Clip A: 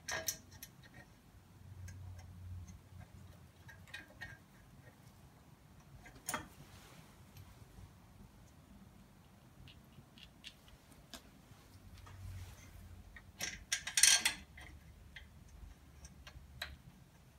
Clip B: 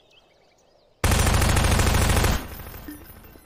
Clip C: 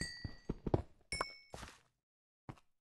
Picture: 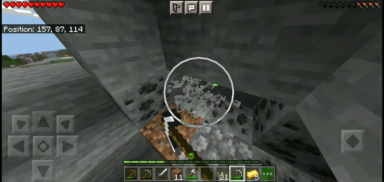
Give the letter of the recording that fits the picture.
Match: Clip C